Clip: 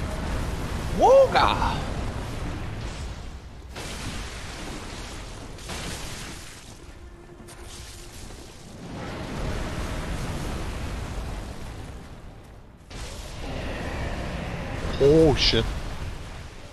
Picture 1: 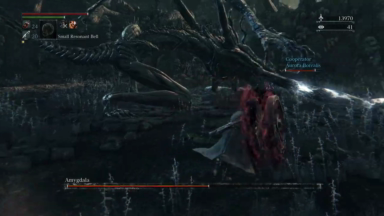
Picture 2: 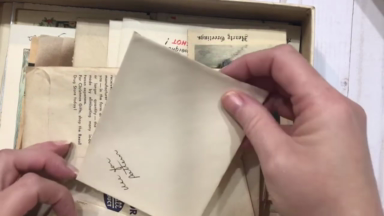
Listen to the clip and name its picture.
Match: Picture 1